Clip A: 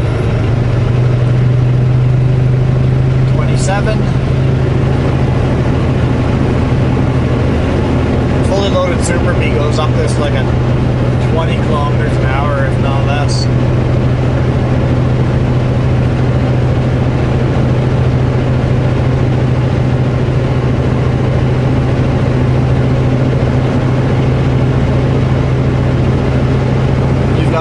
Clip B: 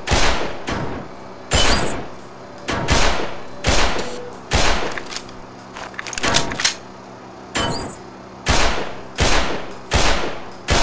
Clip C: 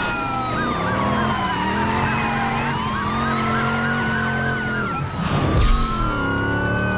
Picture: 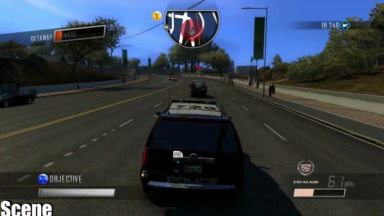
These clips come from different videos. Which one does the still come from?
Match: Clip C